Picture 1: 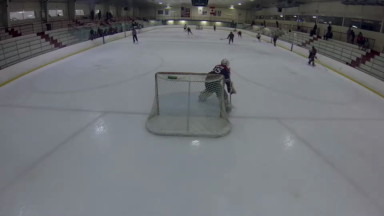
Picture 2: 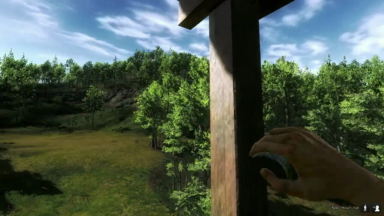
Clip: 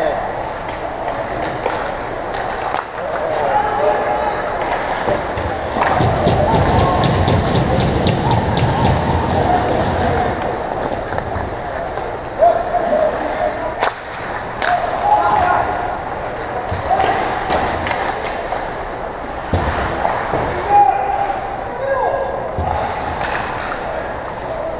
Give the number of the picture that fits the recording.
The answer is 1